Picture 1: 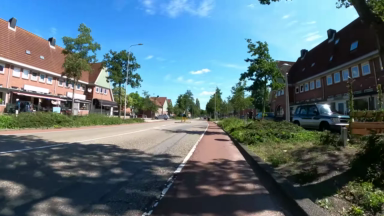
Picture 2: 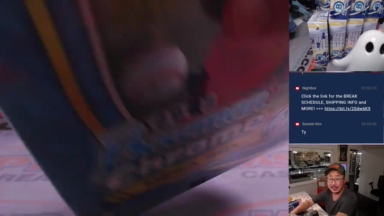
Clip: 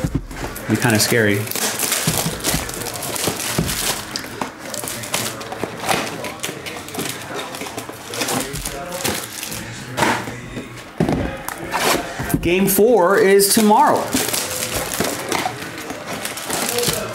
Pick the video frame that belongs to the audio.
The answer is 2